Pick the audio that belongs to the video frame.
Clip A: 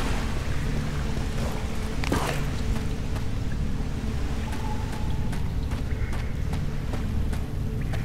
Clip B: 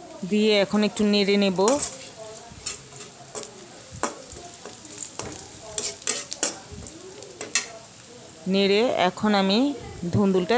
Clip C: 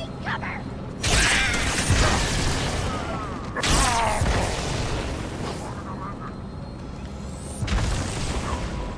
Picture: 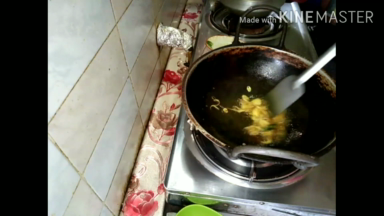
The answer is B